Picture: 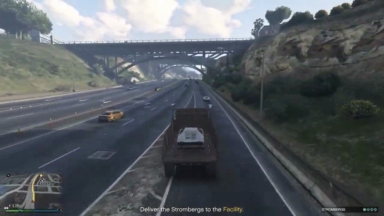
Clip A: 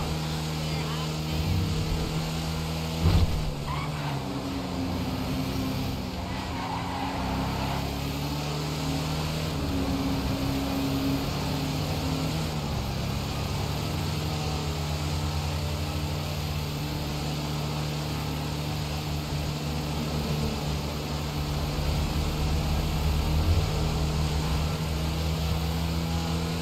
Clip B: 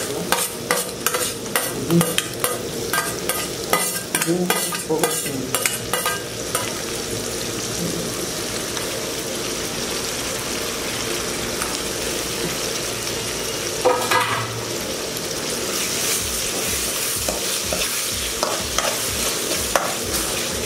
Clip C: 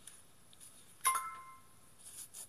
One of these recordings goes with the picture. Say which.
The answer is A